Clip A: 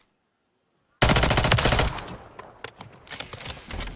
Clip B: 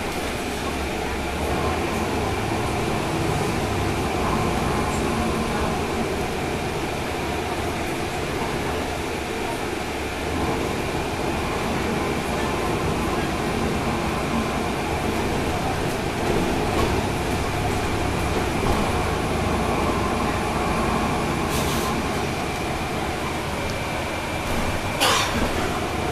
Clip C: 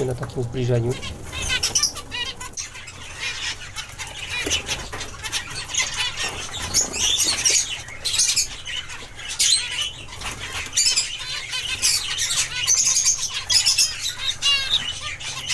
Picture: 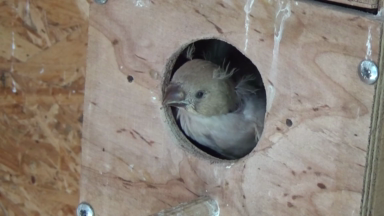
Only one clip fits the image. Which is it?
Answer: C